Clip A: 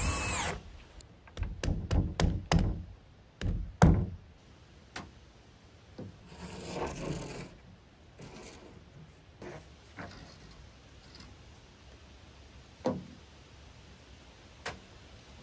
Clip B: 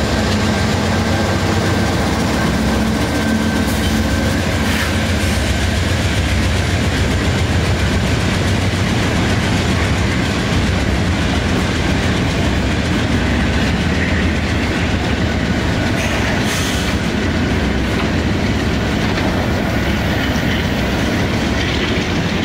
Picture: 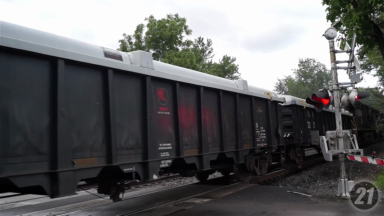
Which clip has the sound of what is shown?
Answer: B